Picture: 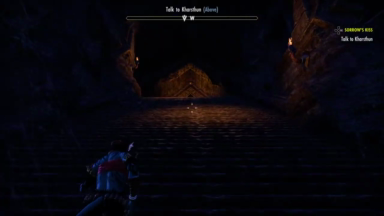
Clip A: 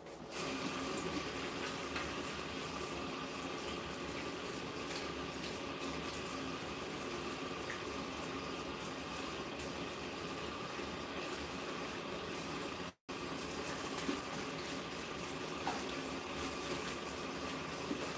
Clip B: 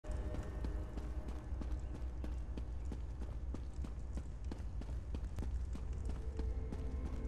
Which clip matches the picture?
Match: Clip B